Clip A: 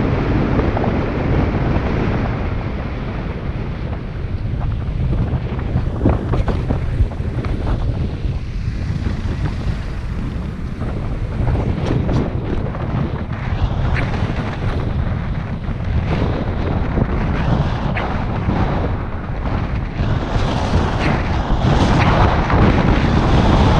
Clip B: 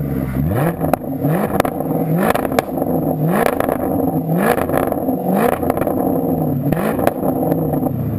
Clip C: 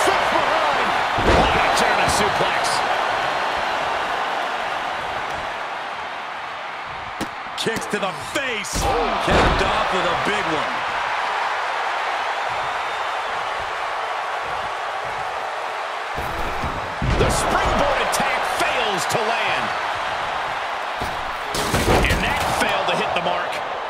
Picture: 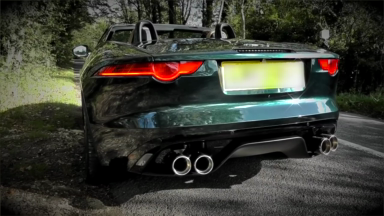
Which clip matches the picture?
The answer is B